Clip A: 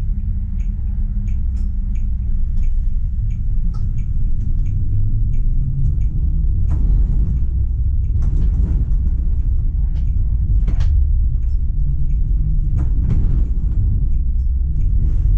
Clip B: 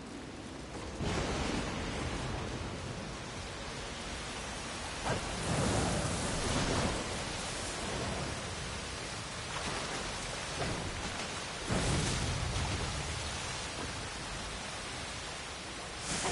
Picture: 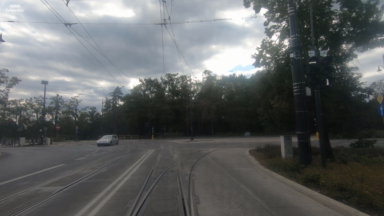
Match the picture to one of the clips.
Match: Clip A